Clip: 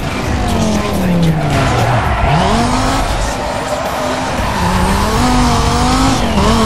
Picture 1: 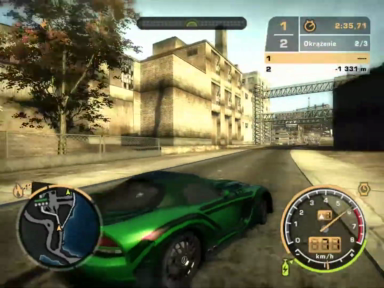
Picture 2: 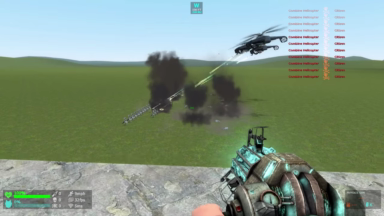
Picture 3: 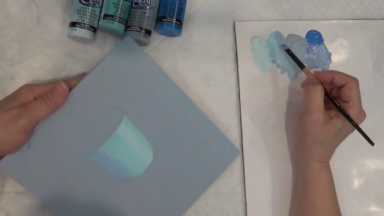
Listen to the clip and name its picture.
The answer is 1